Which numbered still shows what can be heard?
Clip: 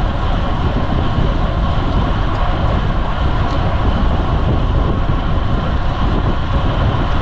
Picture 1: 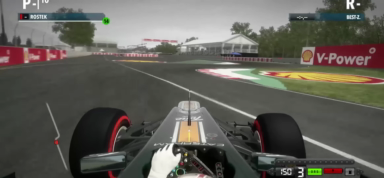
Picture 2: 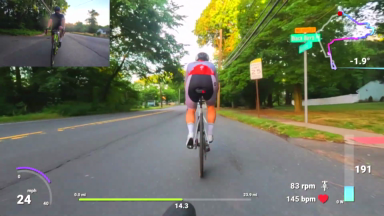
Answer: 2